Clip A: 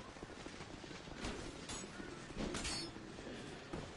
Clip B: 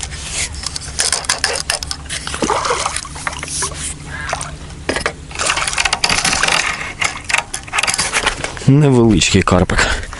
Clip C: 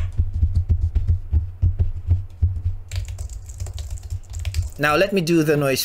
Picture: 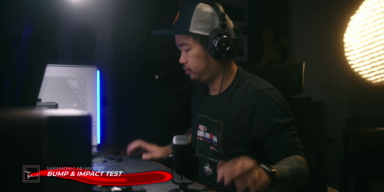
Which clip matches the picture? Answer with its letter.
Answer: C